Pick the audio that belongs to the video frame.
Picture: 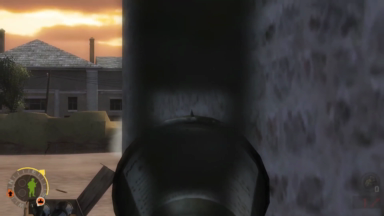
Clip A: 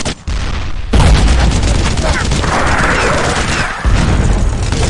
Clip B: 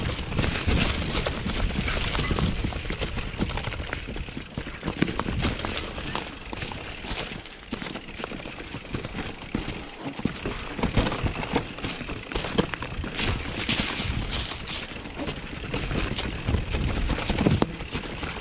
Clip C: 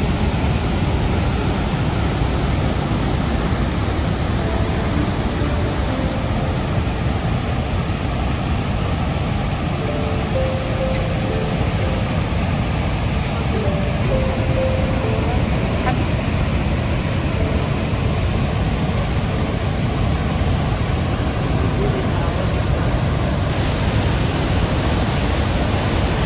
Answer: A